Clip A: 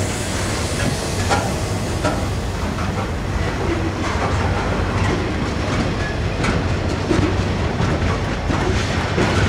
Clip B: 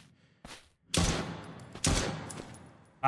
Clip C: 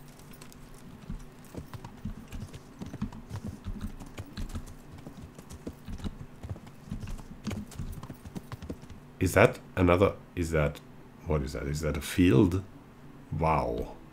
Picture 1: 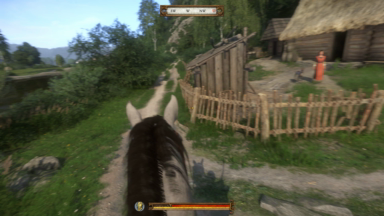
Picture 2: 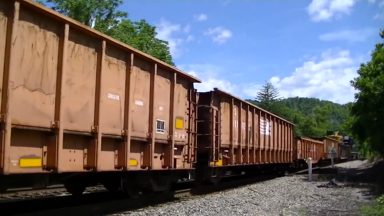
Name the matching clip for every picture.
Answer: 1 C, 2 A